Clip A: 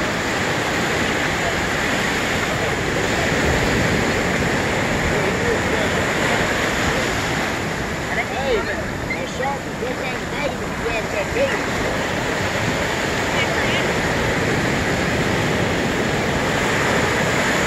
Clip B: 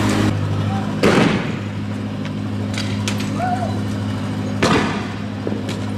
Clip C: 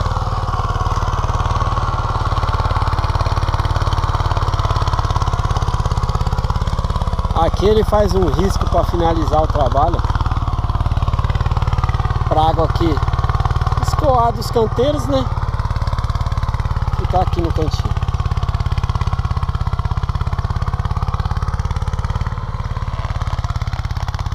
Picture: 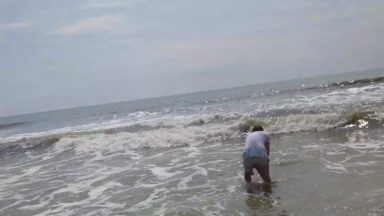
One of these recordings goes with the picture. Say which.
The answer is A